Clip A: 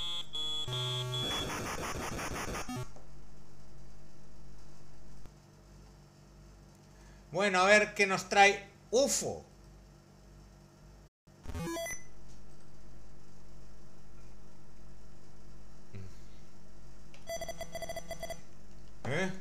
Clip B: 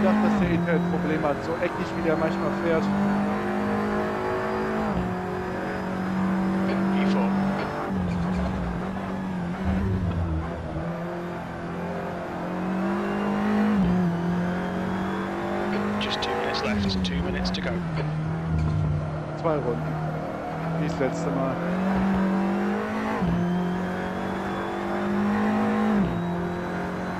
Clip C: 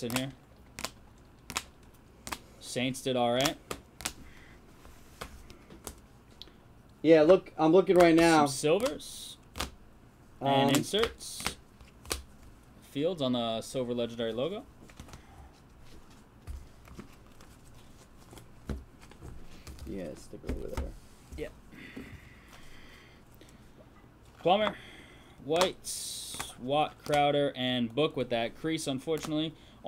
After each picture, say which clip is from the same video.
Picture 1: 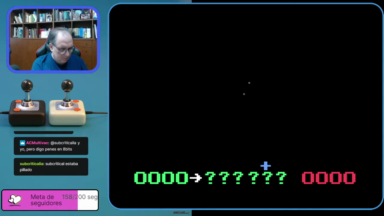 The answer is A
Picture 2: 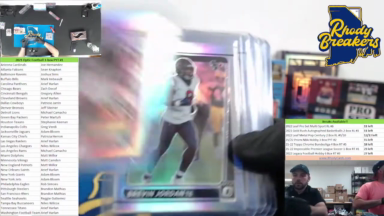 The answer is C